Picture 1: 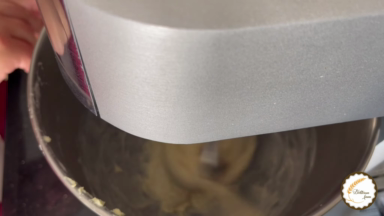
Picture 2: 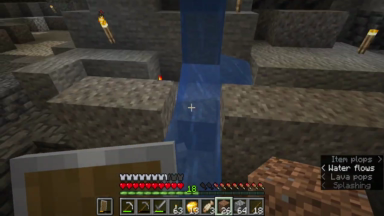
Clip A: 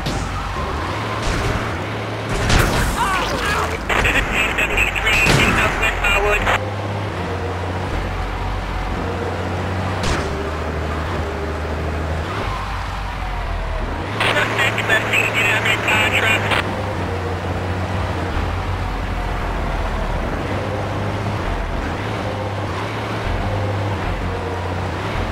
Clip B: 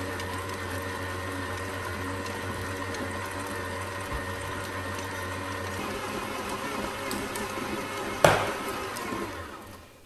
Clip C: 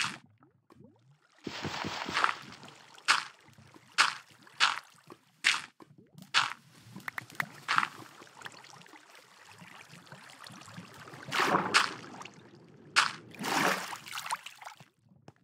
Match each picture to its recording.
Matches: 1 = B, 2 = C